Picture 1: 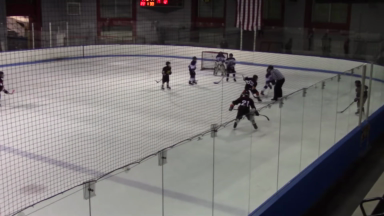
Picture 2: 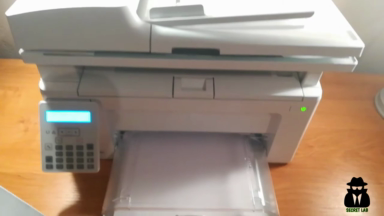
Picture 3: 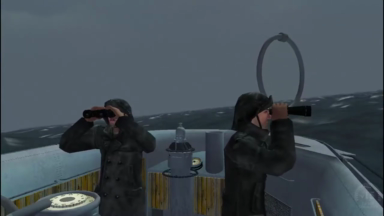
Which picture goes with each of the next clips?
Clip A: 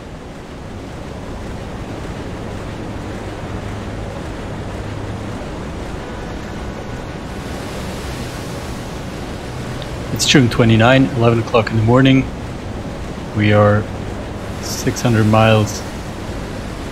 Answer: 3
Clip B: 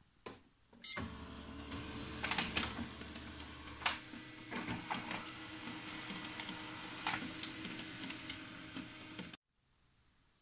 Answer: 2